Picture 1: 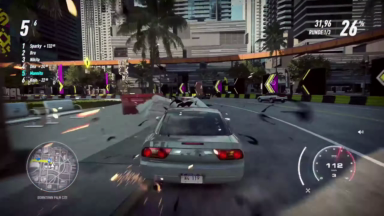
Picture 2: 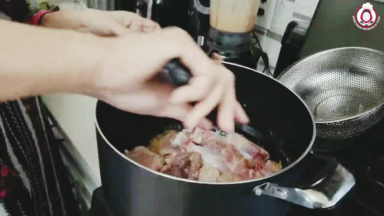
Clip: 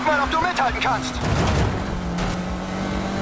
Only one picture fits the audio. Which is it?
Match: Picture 1